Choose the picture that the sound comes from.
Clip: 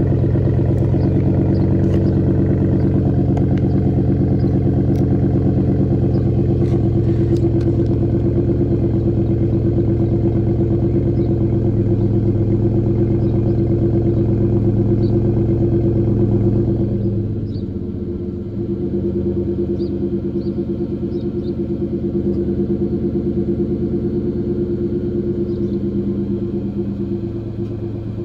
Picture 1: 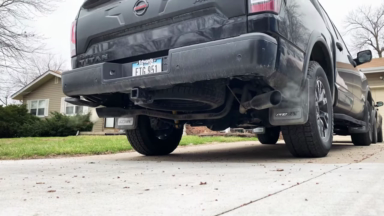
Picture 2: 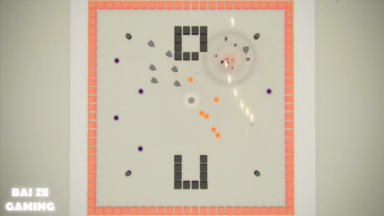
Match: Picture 1